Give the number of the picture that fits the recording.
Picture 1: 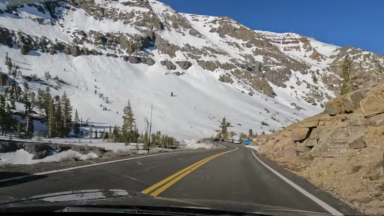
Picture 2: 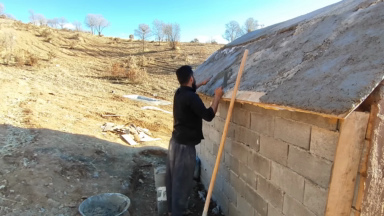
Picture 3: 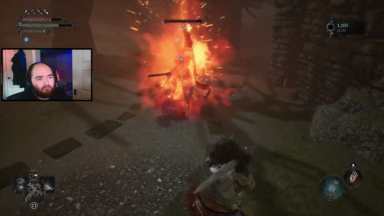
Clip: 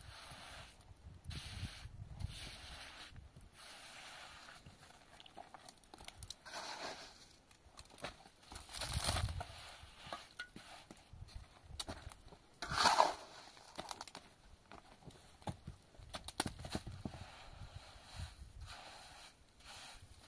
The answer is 2